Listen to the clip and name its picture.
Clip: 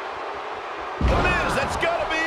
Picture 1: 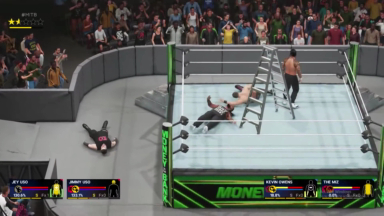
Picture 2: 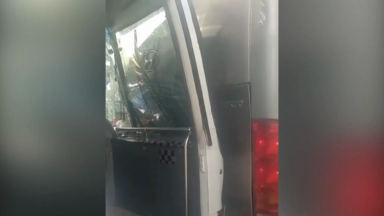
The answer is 1